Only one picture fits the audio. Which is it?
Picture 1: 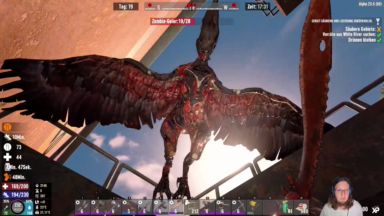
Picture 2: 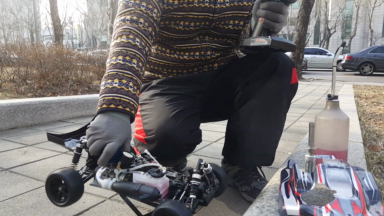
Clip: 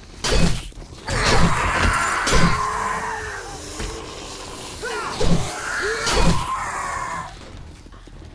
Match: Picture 1